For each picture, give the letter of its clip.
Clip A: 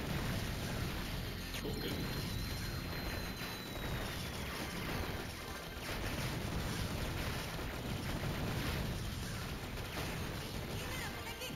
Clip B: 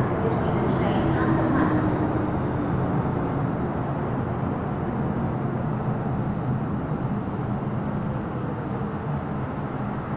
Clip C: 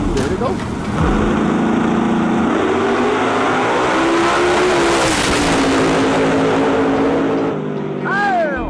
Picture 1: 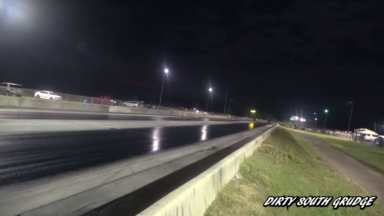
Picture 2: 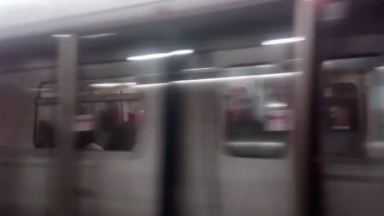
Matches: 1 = C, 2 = B